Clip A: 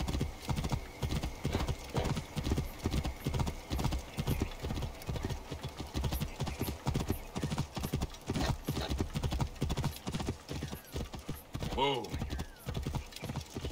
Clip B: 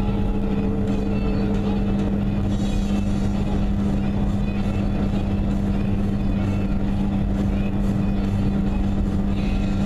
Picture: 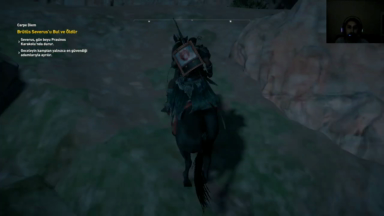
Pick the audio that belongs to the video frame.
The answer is A